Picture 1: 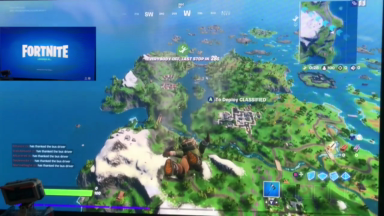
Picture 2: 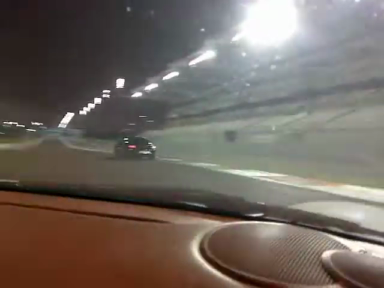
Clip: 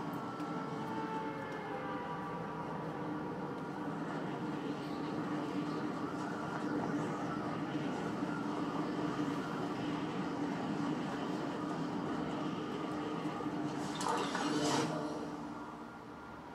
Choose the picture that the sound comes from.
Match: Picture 1